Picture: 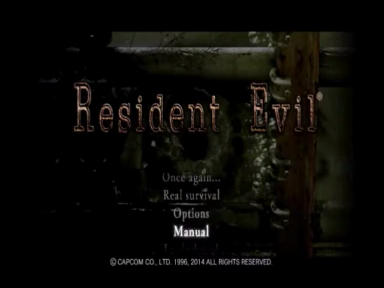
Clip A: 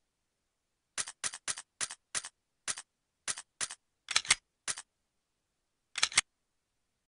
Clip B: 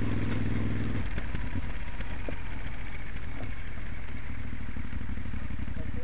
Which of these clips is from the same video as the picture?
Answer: A